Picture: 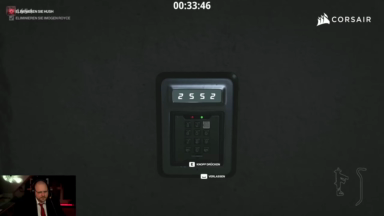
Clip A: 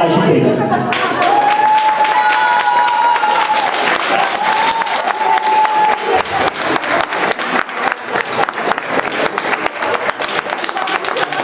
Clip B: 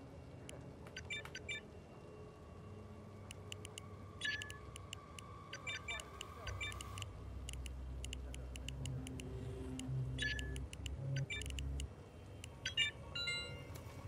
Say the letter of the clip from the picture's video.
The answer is B